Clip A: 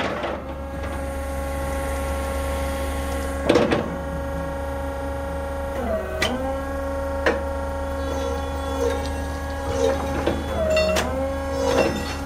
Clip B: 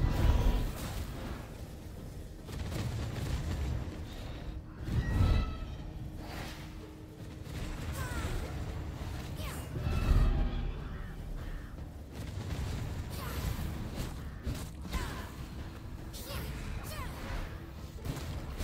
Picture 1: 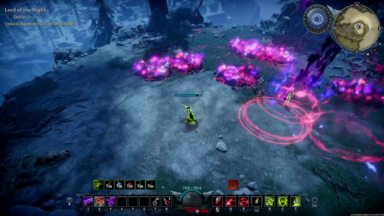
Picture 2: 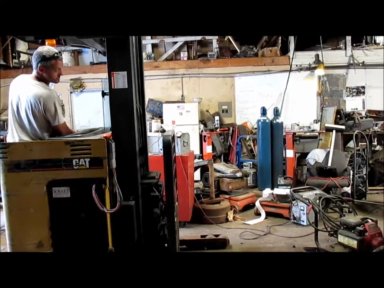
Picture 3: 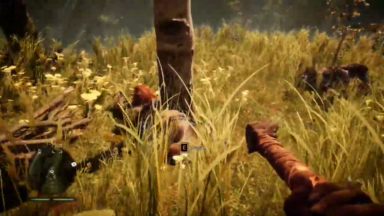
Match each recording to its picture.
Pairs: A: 2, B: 1